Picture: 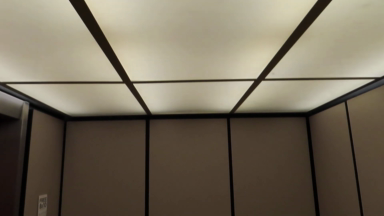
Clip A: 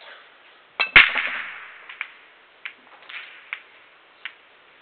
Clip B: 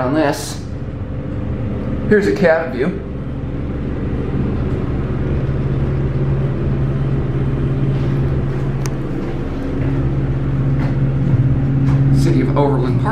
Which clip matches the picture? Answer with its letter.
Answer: B